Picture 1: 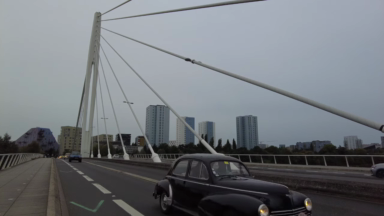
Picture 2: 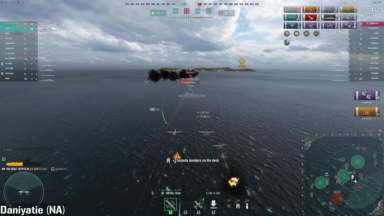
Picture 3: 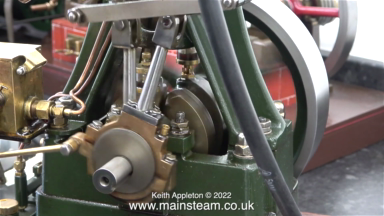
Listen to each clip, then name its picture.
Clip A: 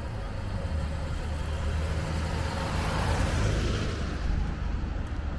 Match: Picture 1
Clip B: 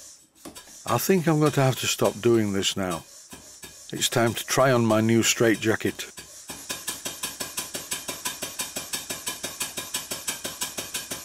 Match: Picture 3